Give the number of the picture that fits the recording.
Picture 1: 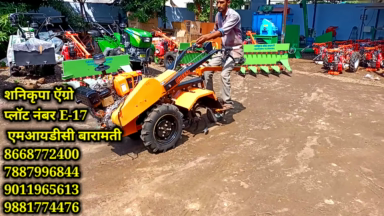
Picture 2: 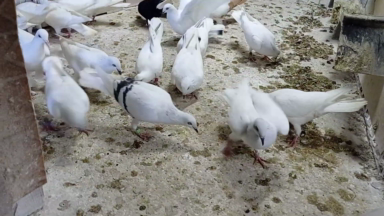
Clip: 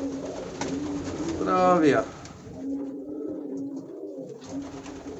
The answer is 2